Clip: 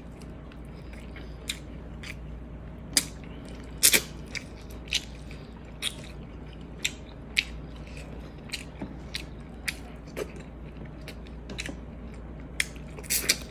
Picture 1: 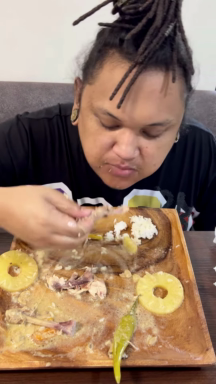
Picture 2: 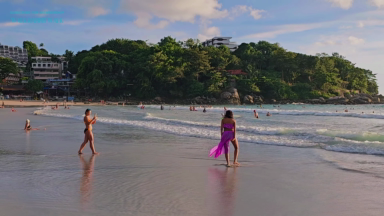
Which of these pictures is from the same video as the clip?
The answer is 1